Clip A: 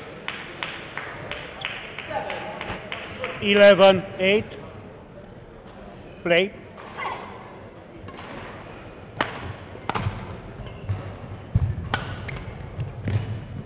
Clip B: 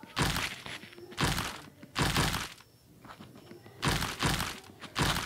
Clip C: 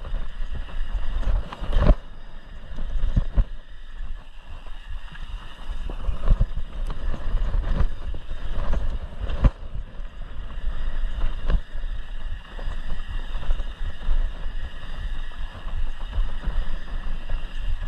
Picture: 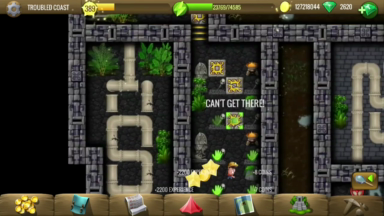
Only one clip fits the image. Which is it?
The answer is B